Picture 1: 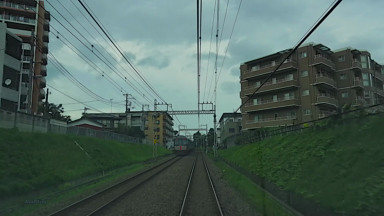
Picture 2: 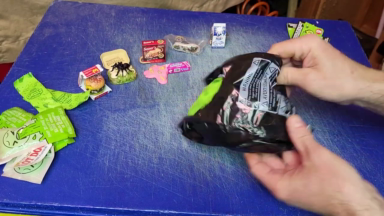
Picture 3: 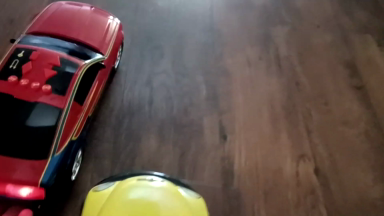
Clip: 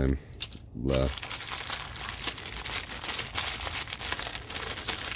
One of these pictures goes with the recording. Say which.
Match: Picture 2